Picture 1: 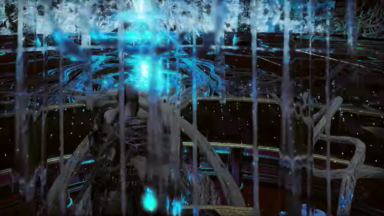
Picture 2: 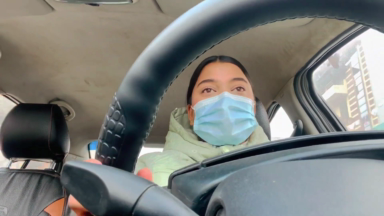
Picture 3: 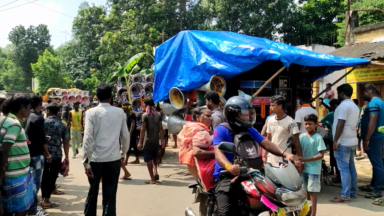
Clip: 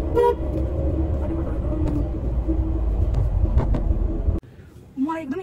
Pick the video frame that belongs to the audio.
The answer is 2